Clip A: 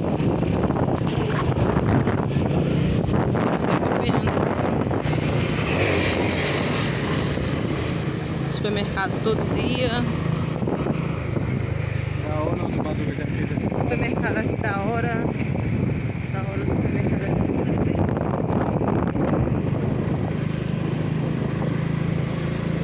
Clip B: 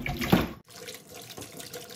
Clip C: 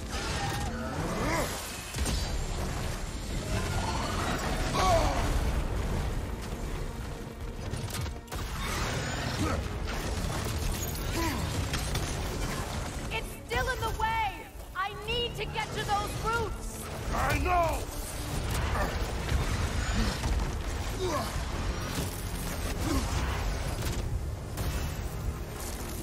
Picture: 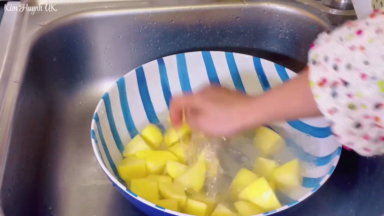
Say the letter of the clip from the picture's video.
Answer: B